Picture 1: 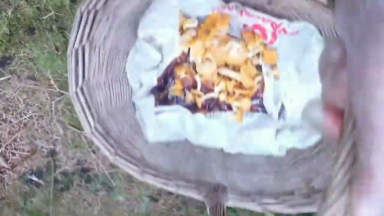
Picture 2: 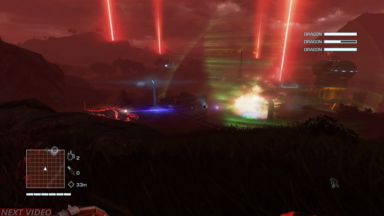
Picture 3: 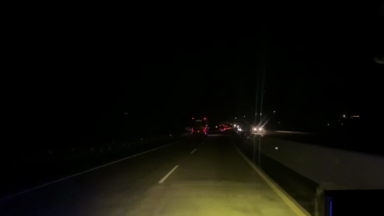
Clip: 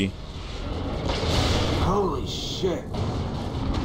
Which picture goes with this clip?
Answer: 2